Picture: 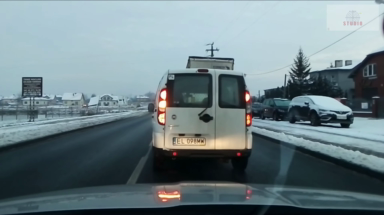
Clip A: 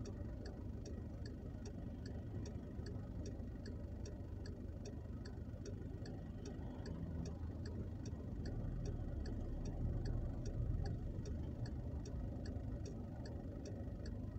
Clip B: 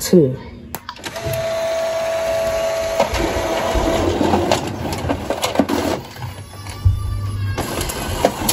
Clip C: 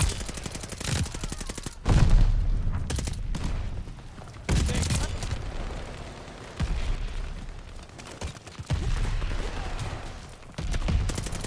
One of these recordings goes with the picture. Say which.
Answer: A